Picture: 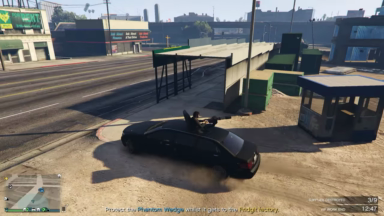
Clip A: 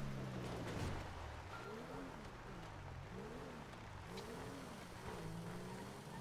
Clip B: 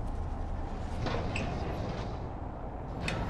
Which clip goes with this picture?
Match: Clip A